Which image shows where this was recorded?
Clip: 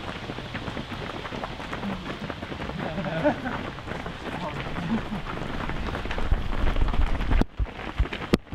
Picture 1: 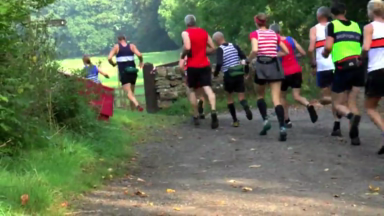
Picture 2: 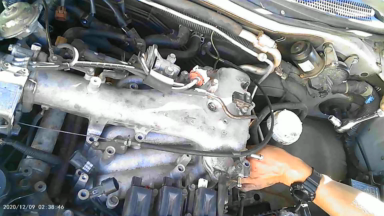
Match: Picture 1